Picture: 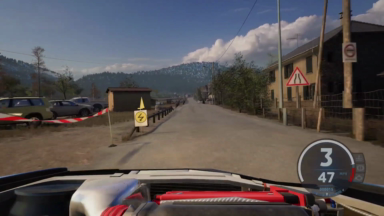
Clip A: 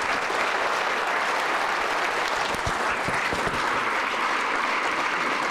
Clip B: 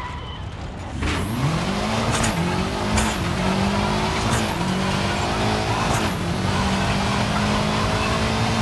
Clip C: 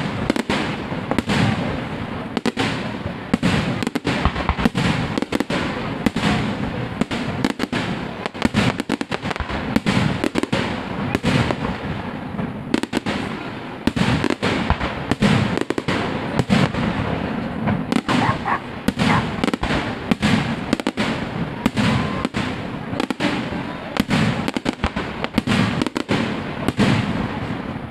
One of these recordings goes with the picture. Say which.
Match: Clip B